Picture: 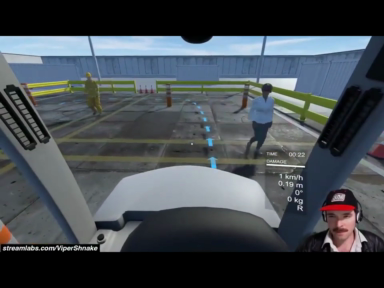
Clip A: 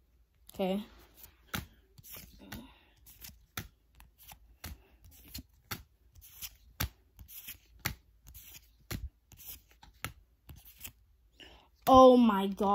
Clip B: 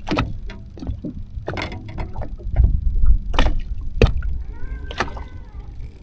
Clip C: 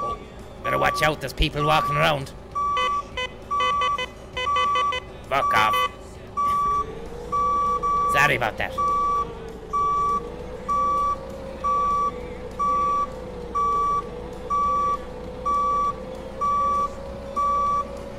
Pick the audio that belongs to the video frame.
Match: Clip C